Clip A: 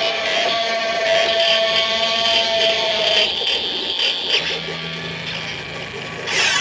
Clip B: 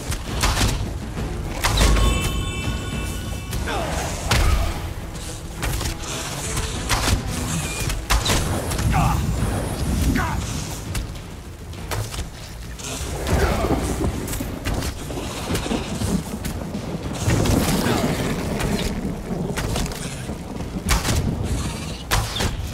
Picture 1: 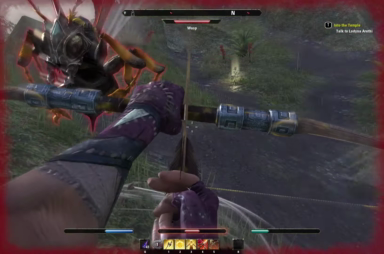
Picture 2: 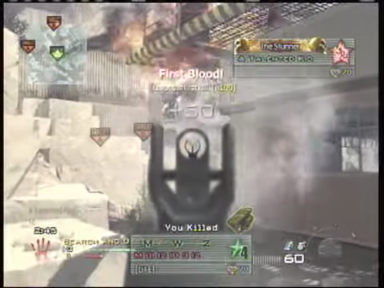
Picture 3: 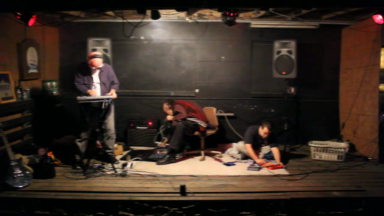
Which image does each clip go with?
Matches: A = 3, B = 1